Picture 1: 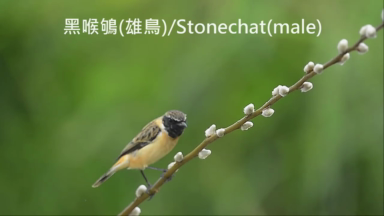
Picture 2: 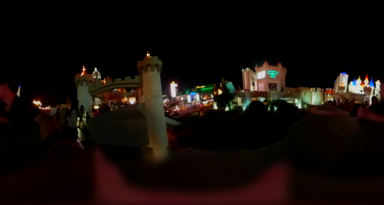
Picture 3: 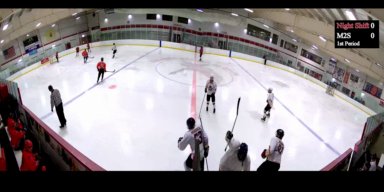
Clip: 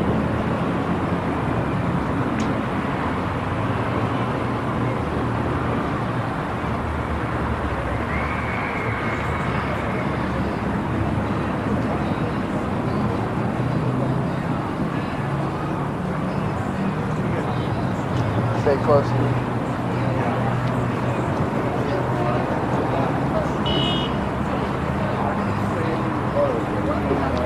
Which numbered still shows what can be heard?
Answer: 2